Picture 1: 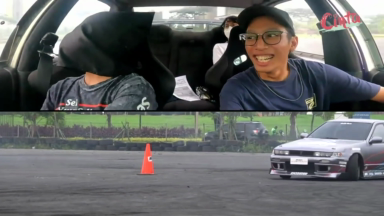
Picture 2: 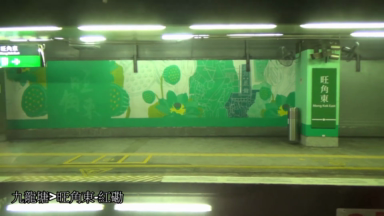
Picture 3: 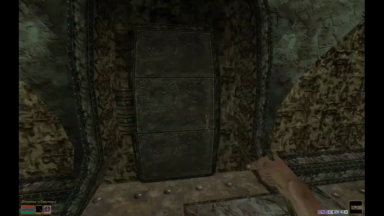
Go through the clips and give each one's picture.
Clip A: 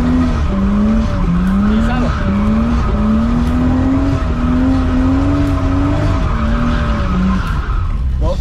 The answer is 1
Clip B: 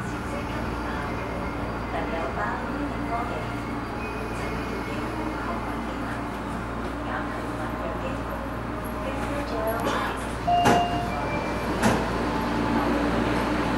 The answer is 2